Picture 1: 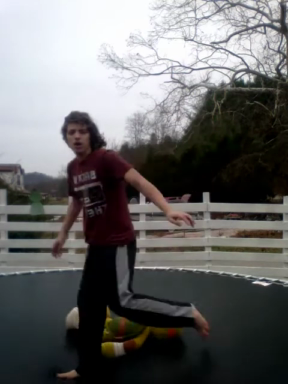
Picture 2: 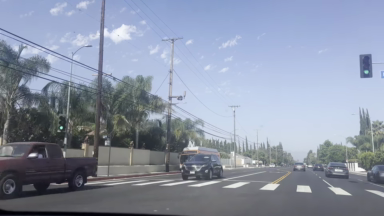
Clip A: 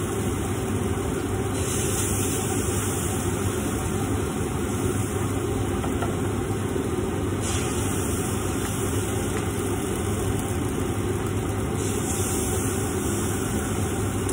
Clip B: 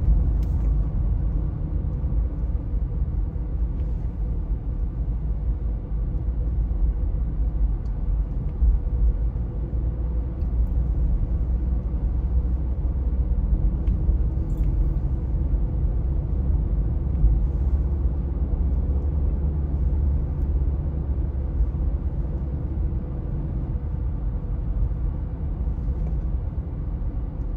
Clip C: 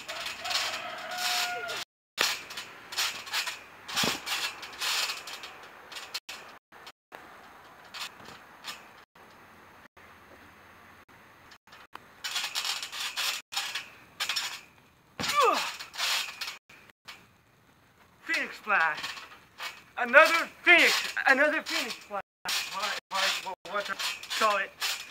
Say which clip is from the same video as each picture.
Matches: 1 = C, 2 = B